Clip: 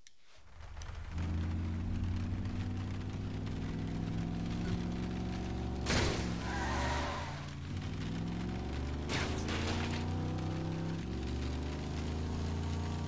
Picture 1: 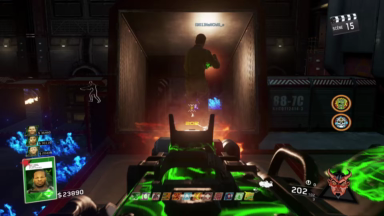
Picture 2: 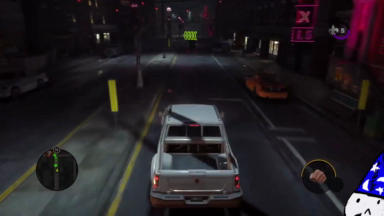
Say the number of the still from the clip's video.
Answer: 2